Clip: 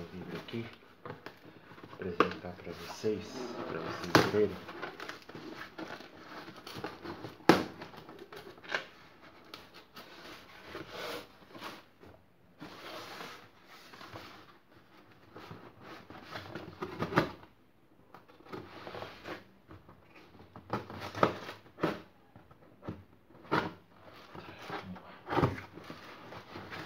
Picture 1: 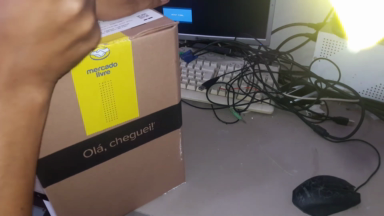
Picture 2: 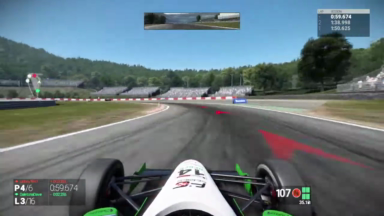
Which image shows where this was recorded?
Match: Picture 1